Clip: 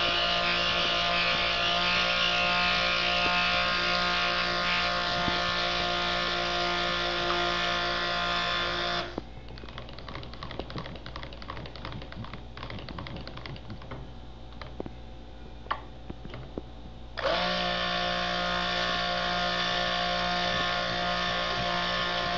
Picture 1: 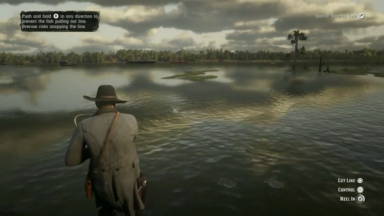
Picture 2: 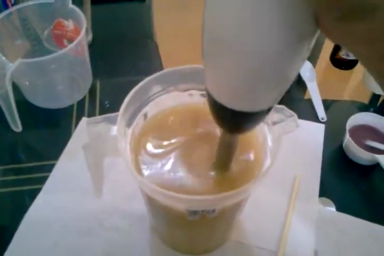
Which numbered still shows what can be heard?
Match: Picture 2